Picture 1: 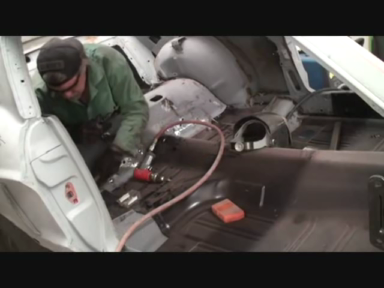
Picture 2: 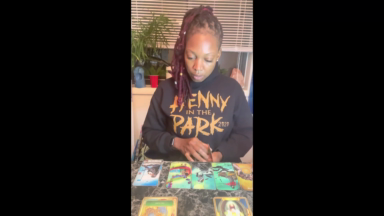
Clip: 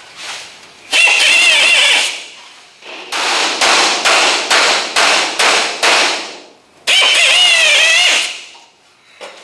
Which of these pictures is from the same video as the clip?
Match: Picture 1